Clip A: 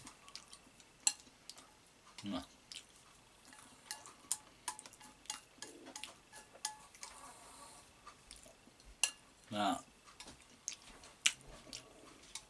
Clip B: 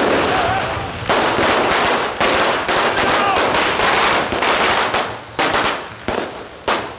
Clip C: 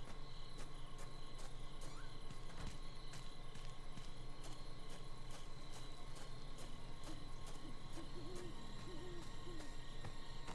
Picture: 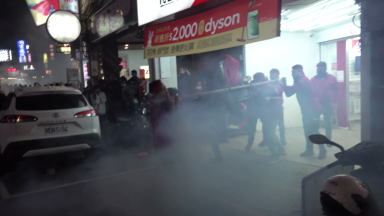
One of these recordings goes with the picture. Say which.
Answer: B